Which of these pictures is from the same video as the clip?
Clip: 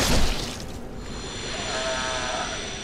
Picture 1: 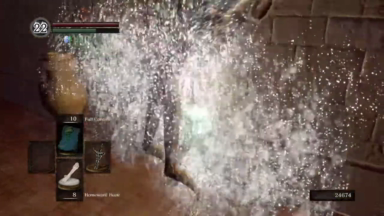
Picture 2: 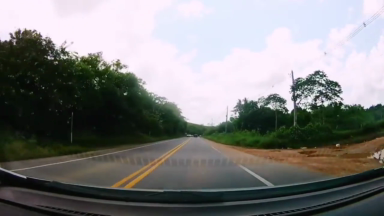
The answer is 1